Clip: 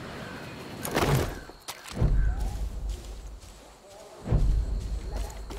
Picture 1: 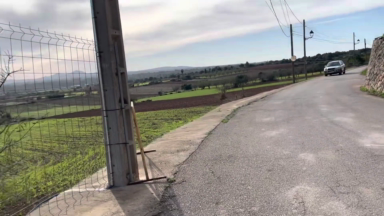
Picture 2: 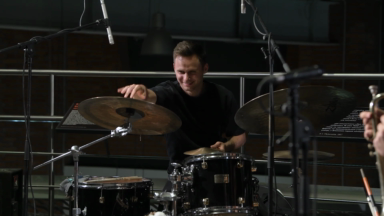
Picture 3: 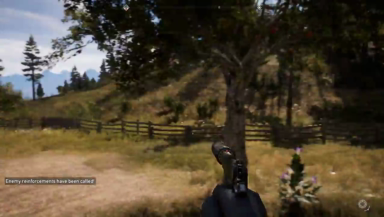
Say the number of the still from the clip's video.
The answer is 3